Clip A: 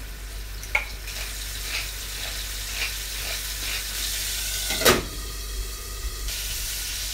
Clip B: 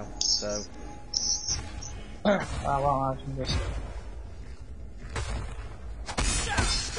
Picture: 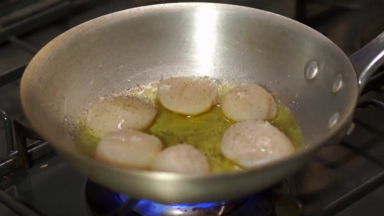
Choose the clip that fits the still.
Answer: A